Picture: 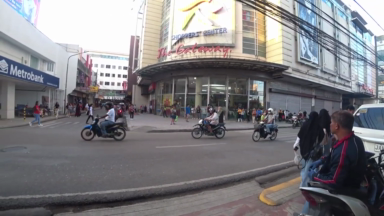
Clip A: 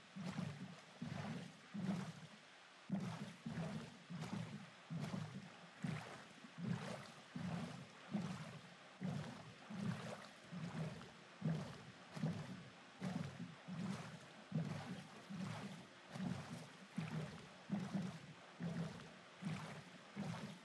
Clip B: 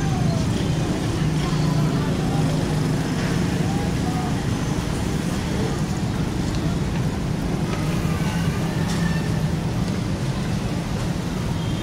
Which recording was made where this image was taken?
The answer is B